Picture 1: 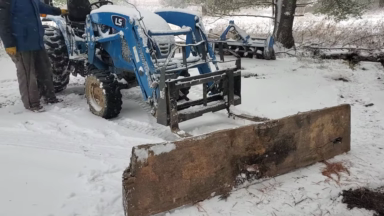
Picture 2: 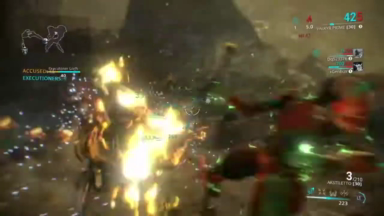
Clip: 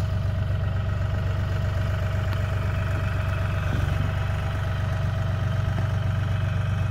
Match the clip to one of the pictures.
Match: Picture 1